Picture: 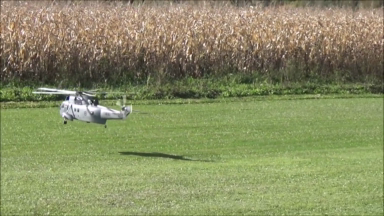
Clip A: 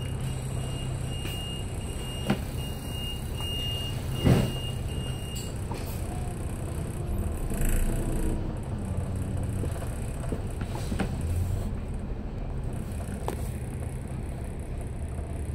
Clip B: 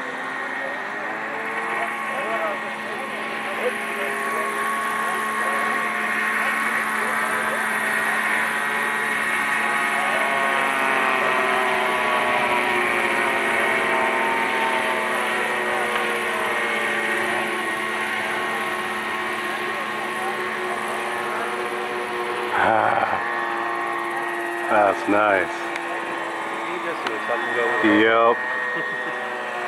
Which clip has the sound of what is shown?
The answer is B